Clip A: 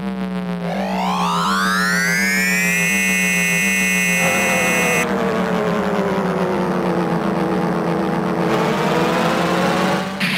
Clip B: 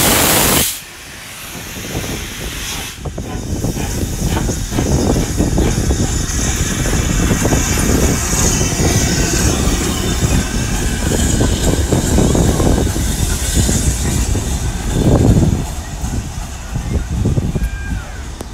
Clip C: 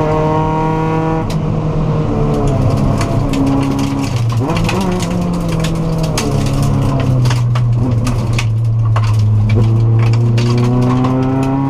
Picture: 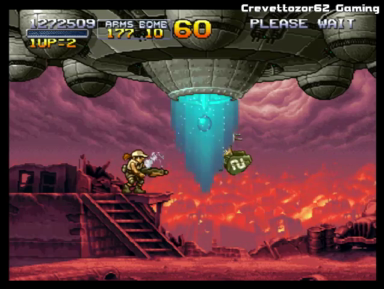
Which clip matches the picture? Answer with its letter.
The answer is A